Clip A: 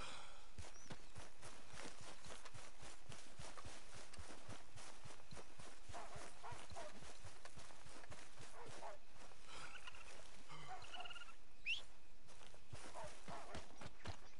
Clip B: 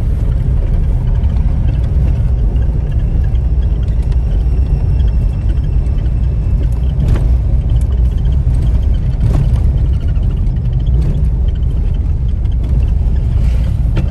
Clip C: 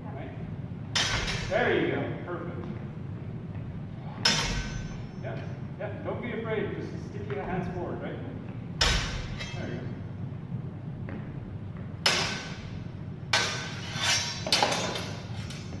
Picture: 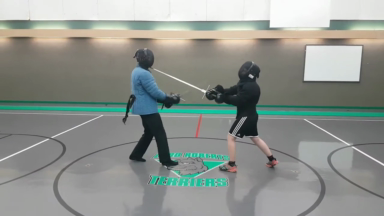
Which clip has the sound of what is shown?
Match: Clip C